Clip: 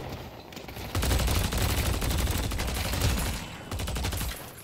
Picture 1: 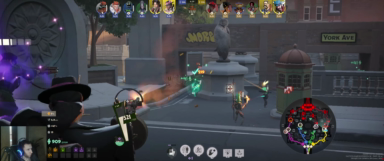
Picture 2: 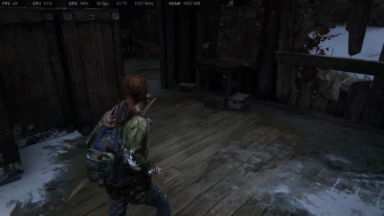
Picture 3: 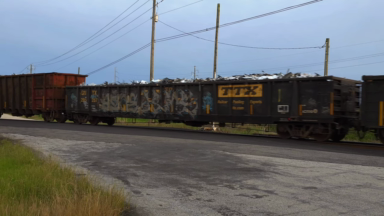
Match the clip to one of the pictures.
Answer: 1